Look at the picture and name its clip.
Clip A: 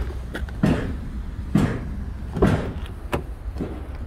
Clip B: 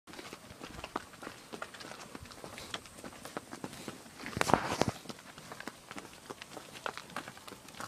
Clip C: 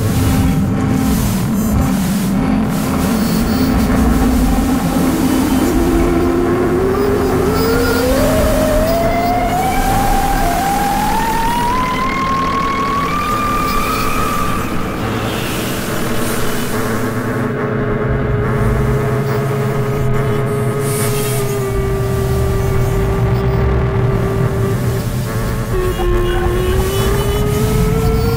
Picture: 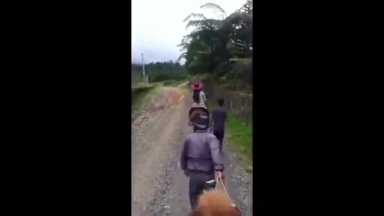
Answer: B